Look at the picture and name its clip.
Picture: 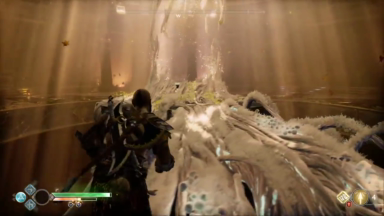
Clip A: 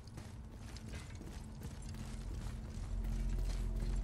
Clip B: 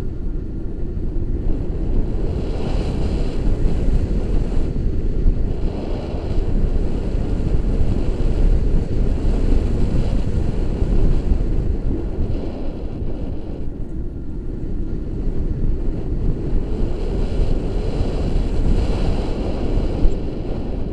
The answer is A